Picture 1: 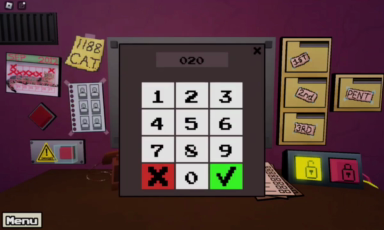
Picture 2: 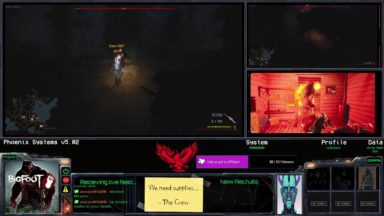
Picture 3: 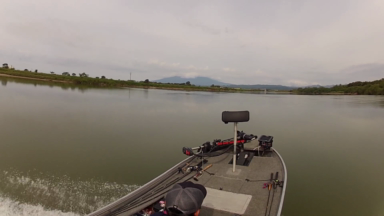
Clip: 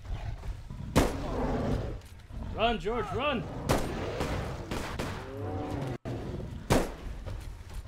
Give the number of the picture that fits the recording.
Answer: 2